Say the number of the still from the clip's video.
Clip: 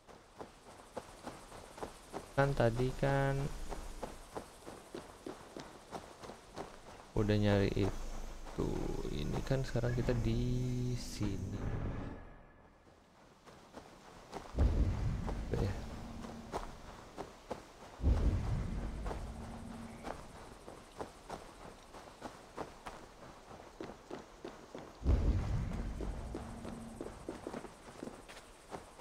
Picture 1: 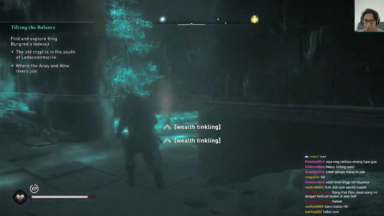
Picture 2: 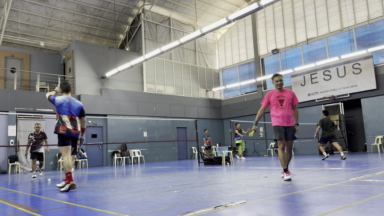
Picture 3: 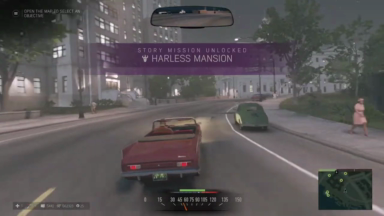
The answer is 1